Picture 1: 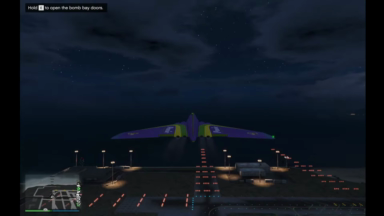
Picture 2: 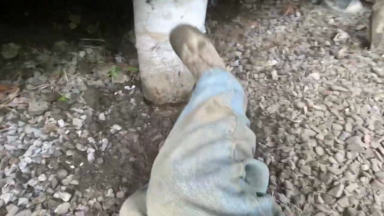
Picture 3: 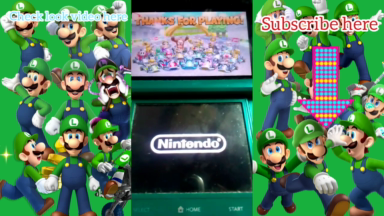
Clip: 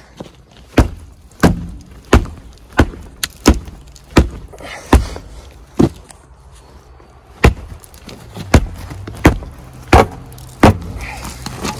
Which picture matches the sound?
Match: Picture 2